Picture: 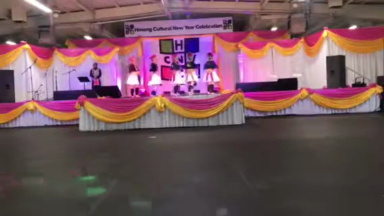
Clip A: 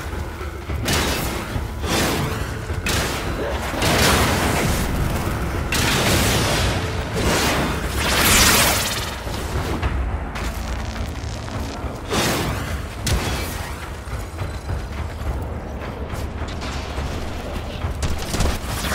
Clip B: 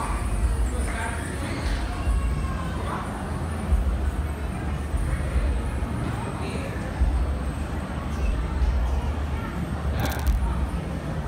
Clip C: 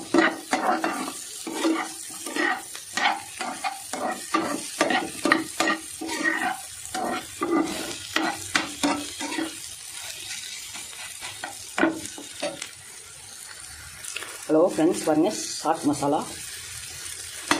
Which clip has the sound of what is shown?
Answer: B